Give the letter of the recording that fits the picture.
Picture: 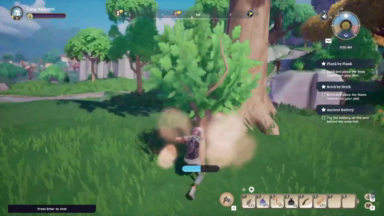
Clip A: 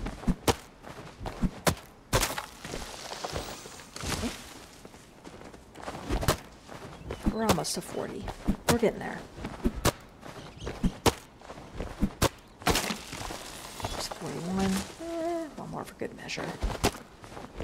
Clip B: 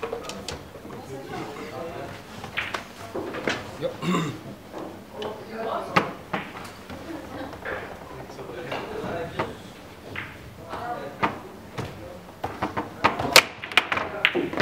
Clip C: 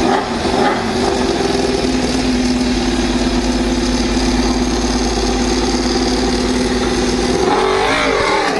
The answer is A